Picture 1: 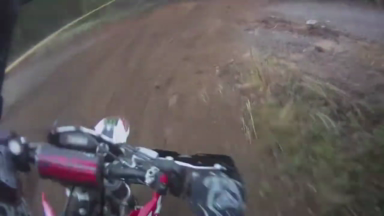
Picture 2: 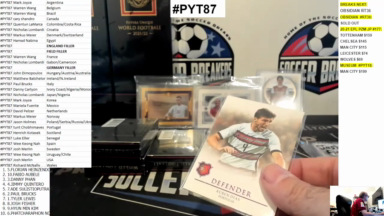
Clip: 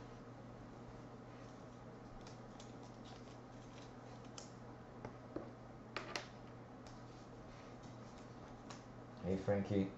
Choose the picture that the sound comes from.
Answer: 2